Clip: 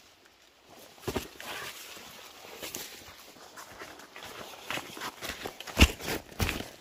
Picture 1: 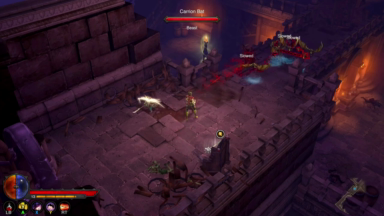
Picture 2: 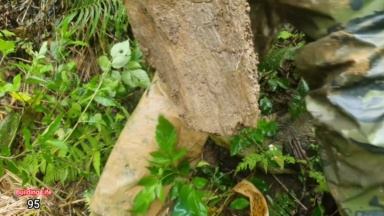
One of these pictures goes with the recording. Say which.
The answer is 2